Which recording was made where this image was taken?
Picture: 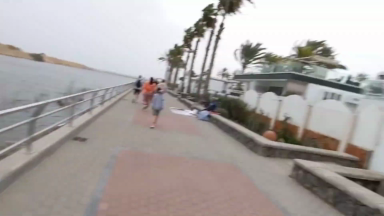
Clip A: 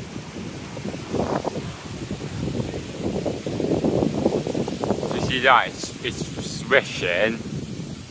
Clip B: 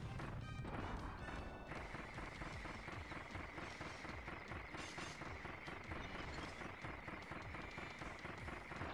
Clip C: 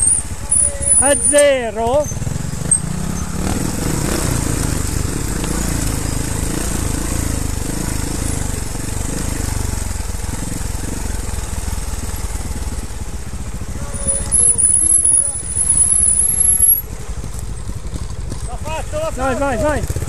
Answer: A